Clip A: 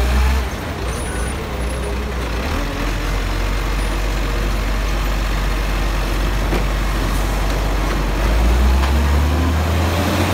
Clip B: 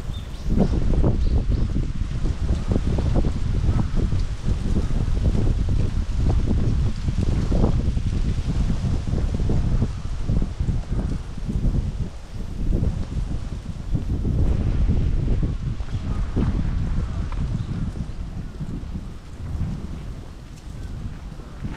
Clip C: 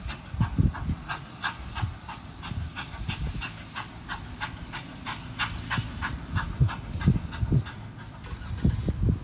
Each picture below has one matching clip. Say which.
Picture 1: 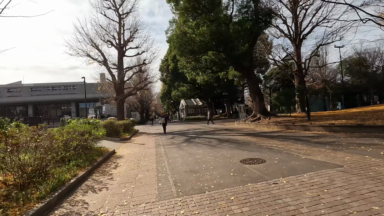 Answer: B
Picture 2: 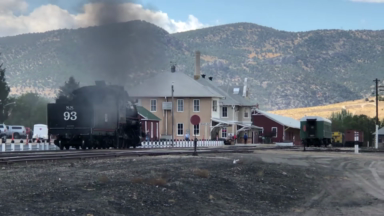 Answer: C